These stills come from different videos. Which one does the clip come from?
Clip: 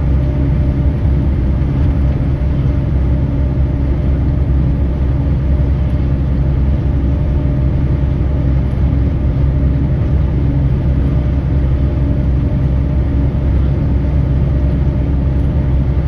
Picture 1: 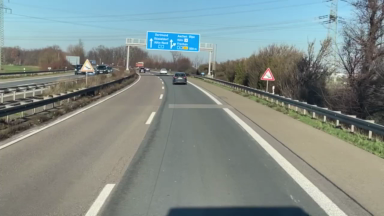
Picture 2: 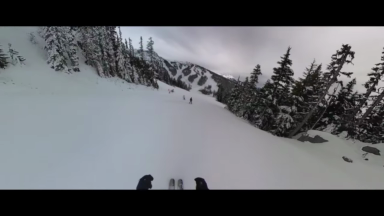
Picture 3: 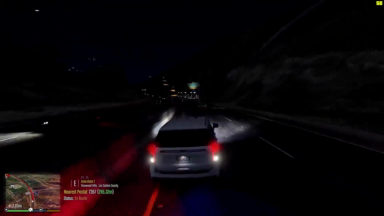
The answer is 1